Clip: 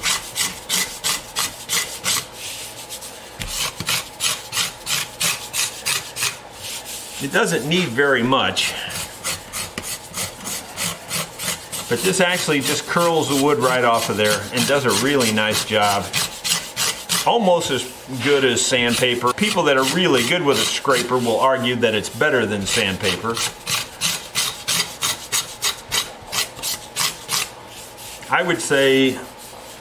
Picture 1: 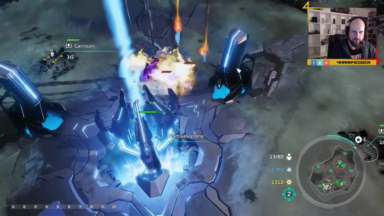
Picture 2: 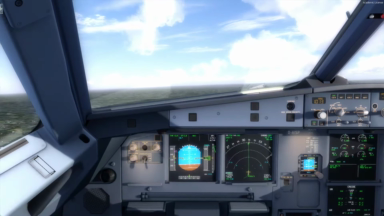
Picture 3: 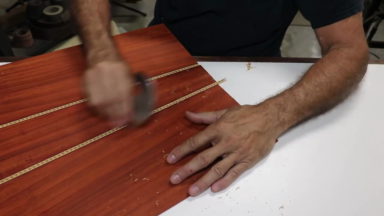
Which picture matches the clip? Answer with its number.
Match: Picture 3